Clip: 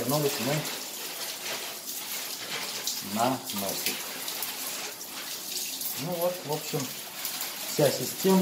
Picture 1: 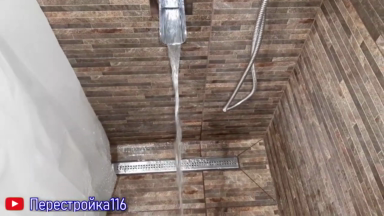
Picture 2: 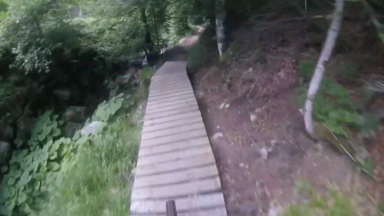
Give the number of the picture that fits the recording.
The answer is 1